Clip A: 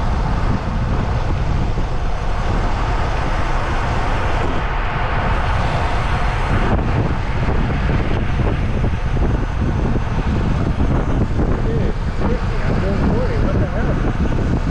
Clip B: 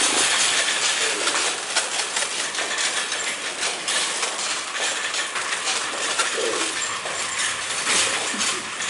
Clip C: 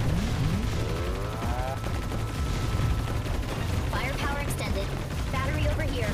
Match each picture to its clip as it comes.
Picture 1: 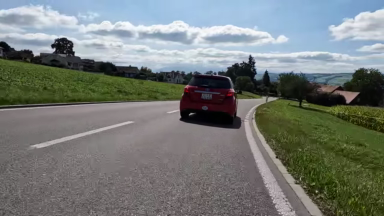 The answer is A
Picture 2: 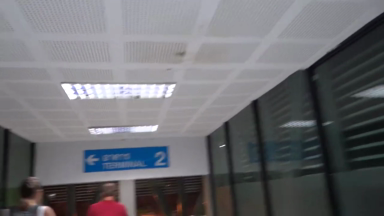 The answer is B